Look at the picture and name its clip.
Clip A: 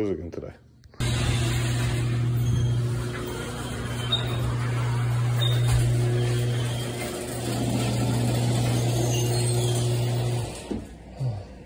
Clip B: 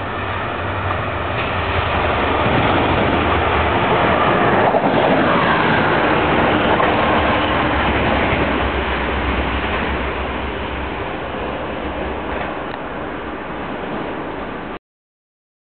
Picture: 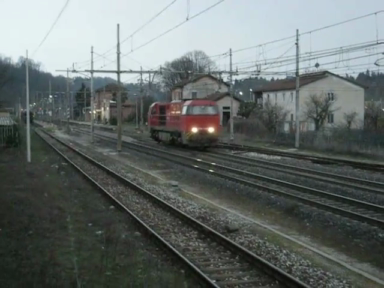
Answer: B